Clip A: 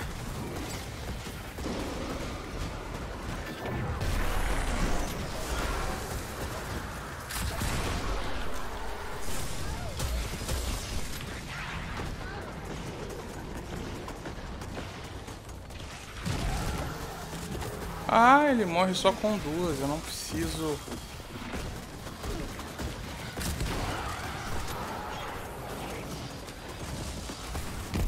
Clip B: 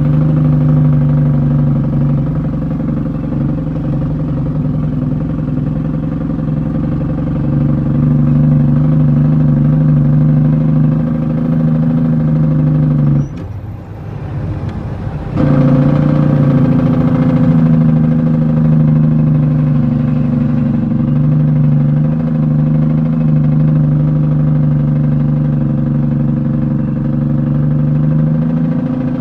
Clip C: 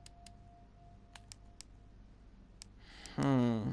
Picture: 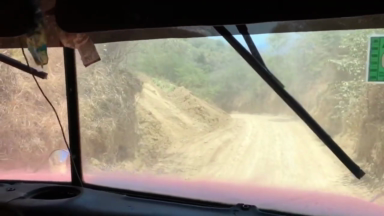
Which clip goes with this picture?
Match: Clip B